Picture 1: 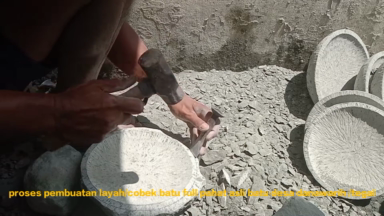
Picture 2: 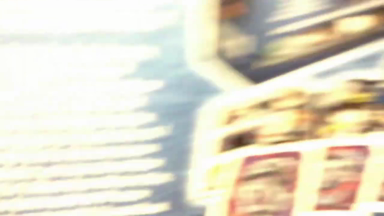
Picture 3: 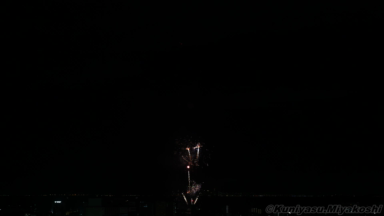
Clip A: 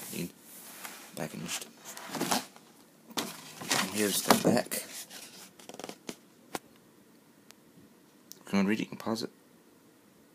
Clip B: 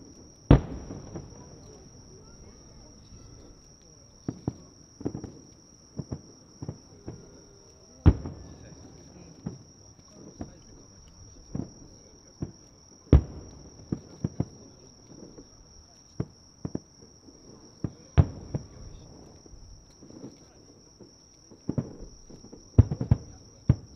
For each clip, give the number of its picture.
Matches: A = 2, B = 3